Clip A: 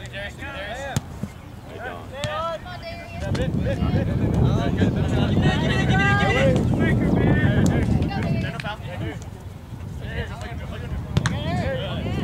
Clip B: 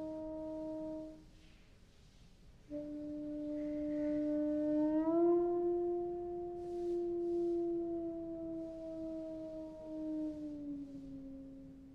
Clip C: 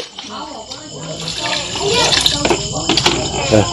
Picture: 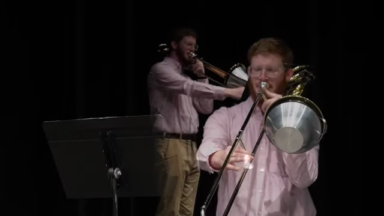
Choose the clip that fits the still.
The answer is B